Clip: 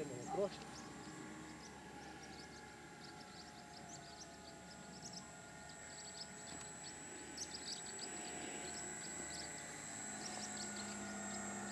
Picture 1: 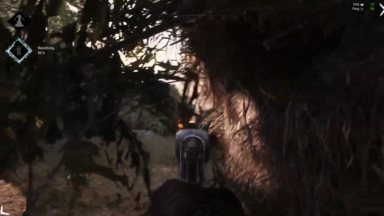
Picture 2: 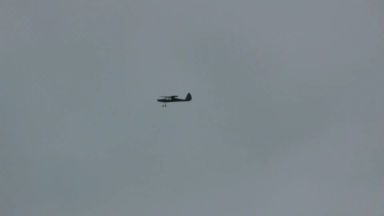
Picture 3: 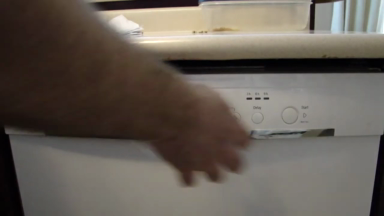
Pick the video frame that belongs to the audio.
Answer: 2